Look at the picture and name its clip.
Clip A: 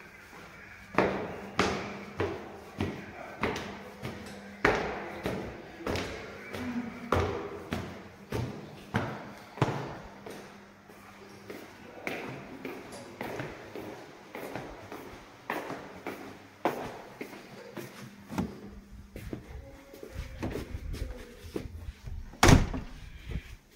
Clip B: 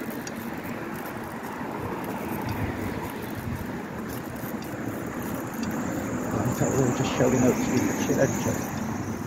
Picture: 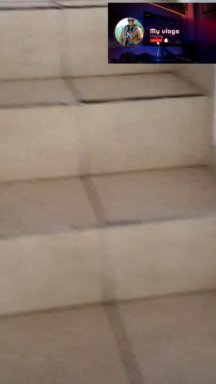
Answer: A